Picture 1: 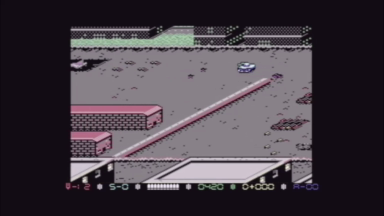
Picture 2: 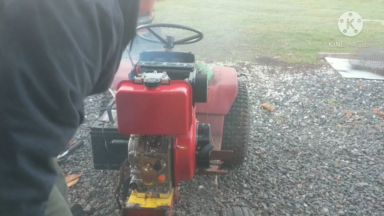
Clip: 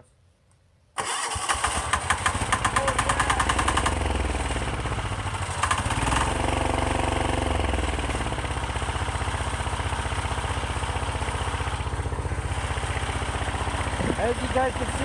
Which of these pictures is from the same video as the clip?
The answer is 2